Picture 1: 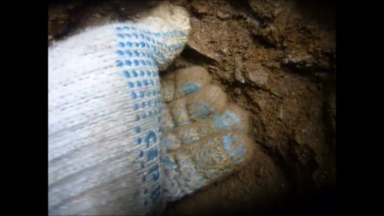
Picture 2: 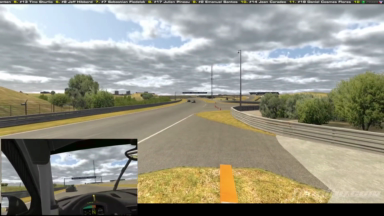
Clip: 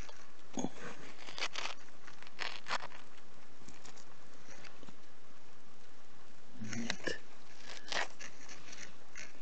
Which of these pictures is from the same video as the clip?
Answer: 1